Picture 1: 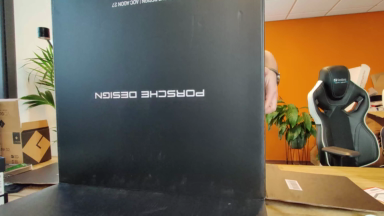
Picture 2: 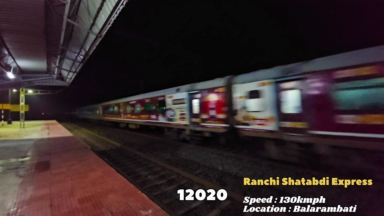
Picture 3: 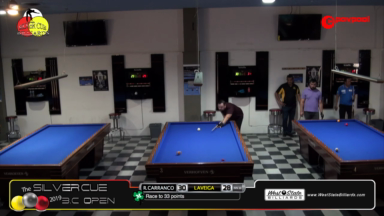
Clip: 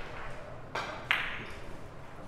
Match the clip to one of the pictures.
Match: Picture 3